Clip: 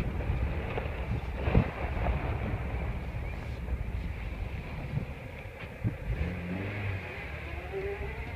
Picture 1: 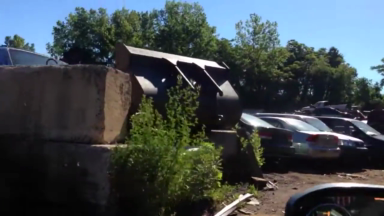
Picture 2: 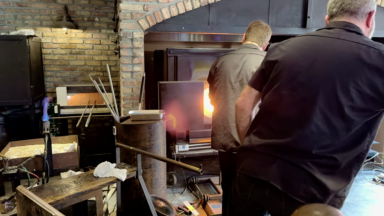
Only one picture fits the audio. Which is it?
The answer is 1